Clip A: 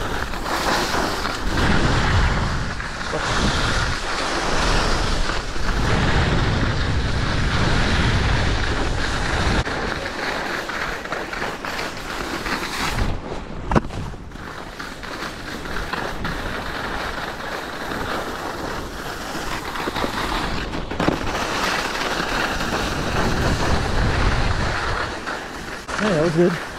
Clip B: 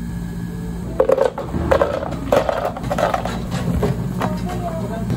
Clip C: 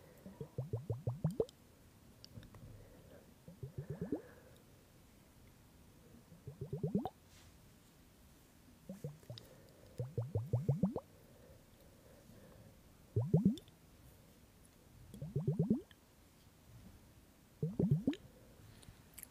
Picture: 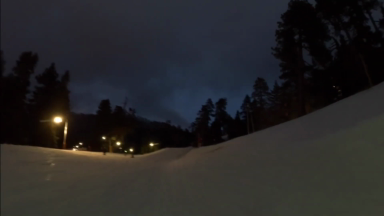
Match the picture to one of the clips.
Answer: A